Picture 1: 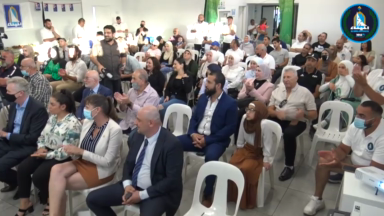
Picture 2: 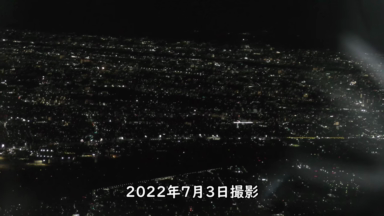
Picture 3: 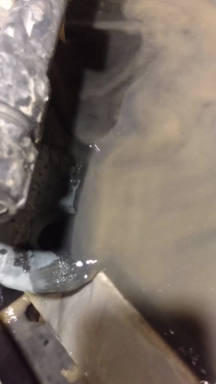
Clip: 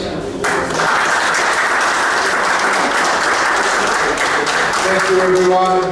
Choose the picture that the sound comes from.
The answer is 1